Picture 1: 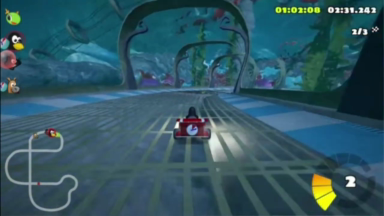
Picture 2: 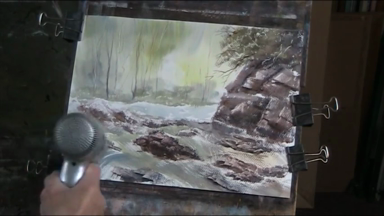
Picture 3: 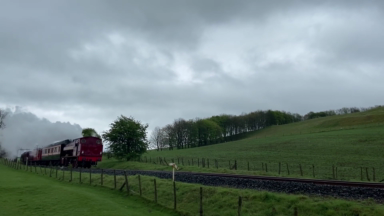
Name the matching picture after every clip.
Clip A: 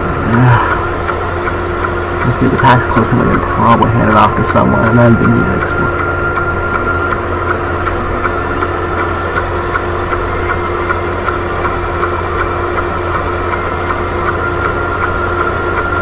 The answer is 1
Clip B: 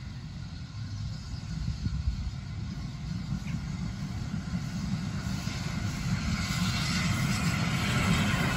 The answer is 3